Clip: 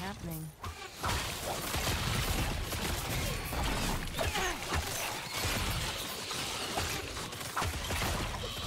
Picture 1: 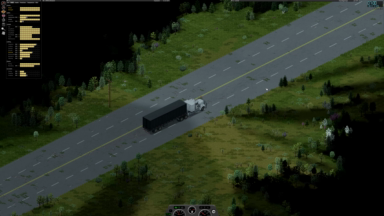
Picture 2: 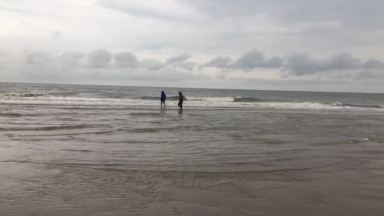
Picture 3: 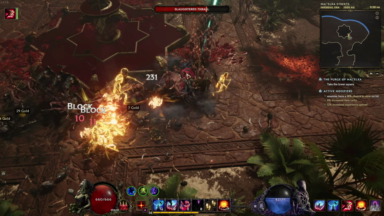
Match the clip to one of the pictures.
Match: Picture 3